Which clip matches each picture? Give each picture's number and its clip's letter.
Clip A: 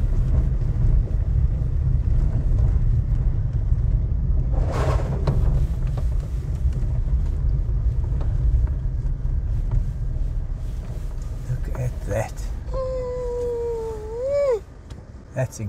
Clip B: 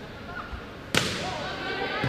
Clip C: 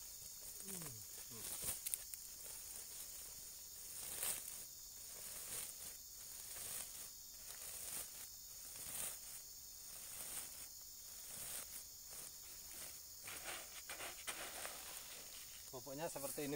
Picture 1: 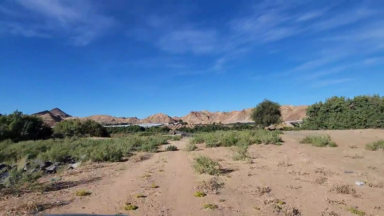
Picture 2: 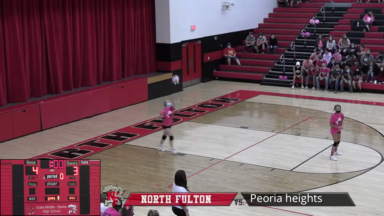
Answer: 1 A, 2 B